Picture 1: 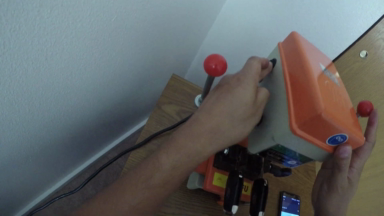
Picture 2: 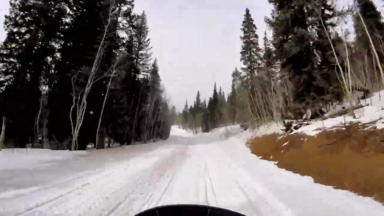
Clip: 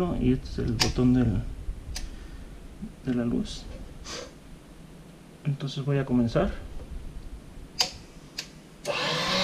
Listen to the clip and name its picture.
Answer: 1